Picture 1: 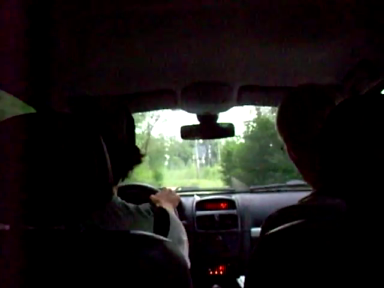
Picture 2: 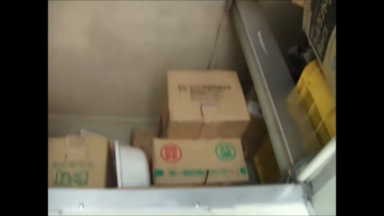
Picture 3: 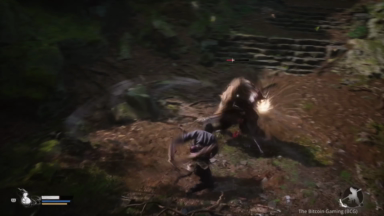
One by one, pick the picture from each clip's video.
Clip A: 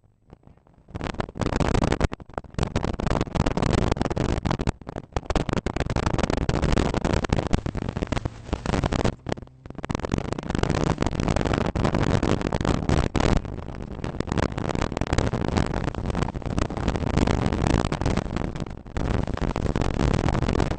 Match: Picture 1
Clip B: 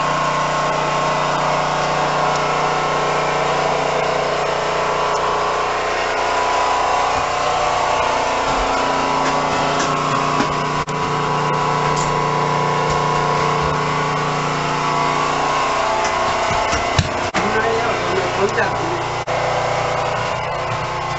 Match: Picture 2